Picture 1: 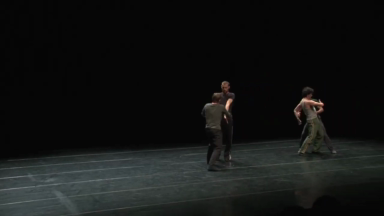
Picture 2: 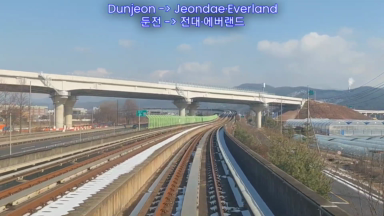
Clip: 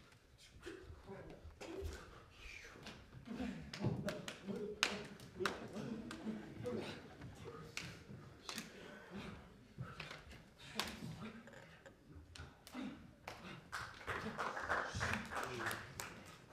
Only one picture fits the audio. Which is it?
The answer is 1